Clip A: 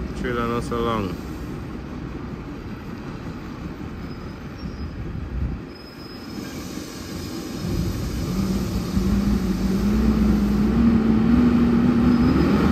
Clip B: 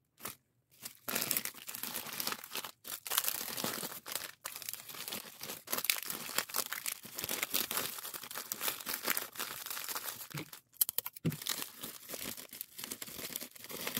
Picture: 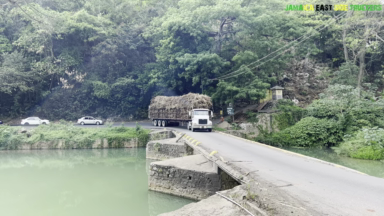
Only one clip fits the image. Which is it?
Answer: A